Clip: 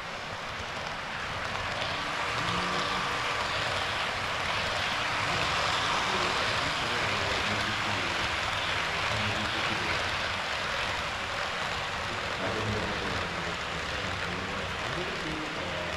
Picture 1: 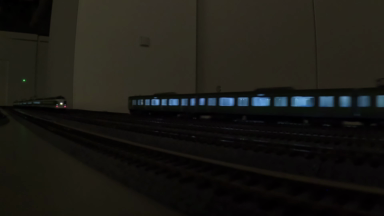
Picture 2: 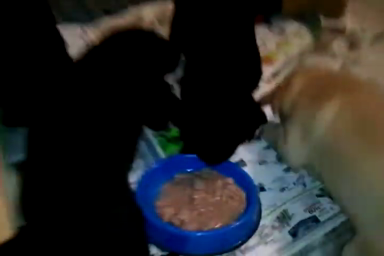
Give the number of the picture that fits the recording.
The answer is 1